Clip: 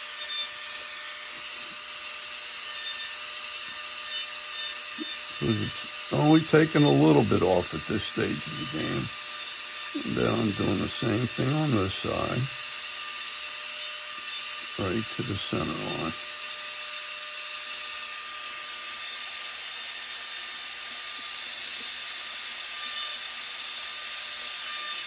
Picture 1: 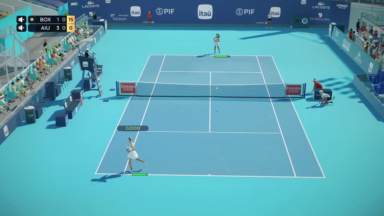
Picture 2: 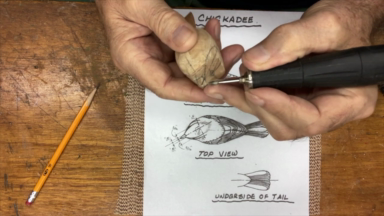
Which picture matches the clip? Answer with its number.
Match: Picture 2